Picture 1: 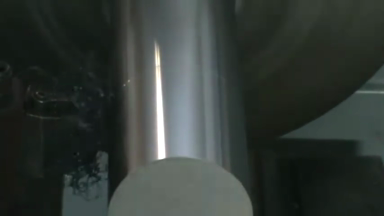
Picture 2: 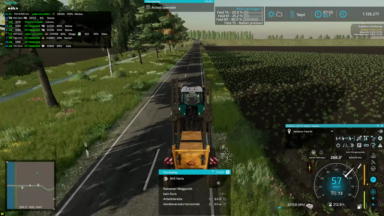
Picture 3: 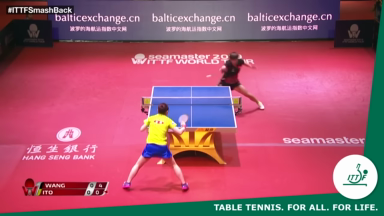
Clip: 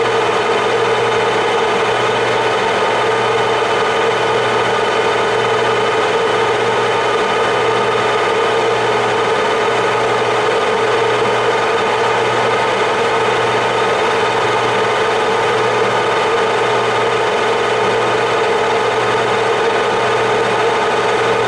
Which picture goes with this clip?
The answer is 1